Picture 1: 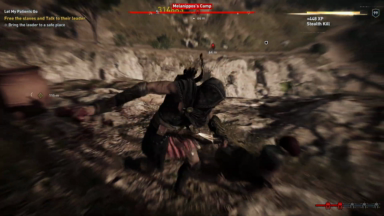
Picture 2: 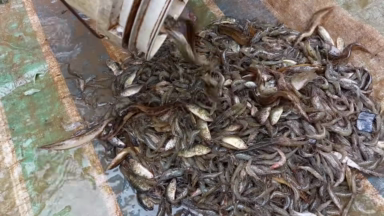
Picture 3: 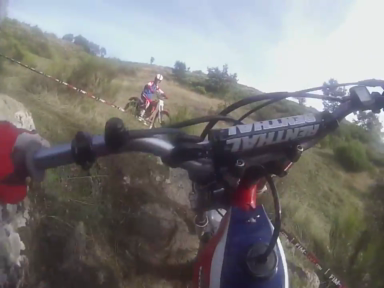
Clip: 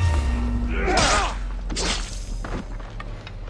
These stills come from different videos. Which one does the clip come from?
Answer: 1